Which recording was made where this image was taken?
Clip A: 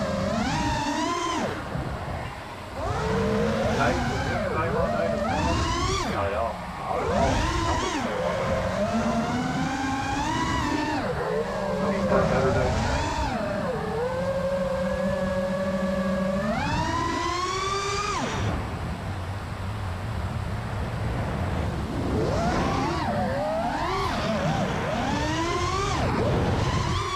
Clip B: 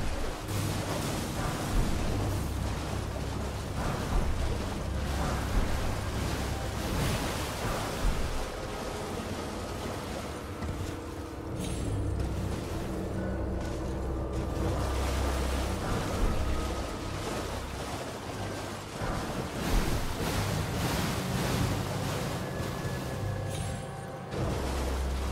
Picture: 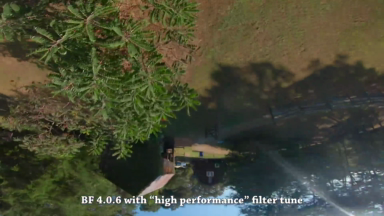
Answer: A